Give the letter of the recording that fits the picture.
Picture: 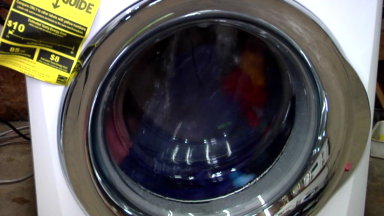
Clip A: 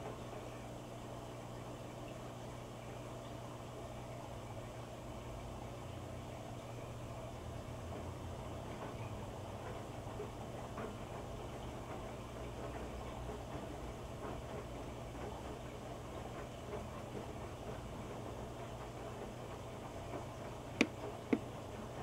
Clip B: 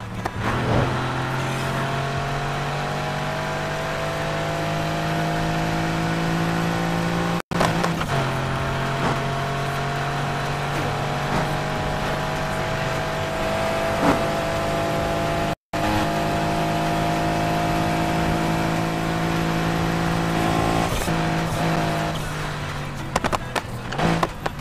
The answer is A